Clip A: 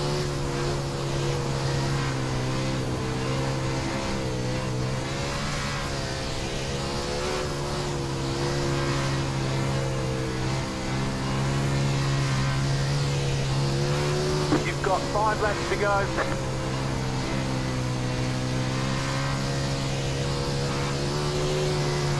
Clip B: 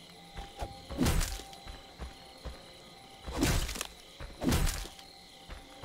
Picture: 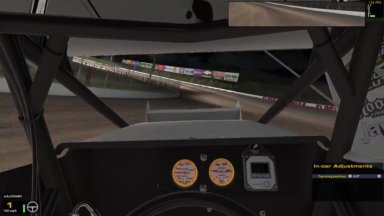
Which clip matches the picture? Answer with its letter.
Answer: A